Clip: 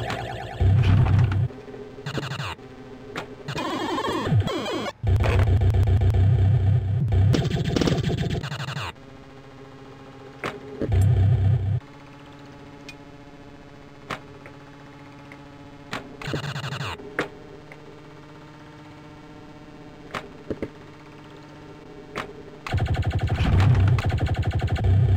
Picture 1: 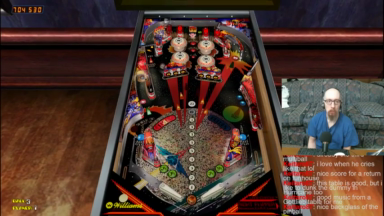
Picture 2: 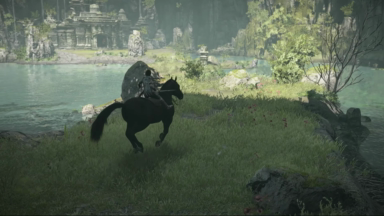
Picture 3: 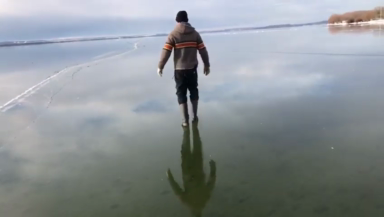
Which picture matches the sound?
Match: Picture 1